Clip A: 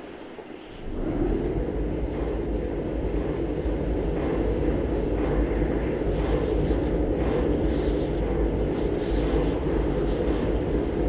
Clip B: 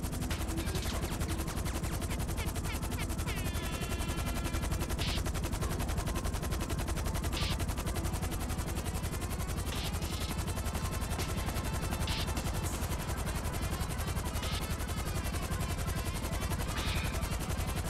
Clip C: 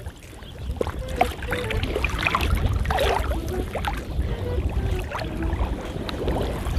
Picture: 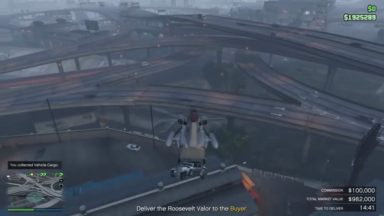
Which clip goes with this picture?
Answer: B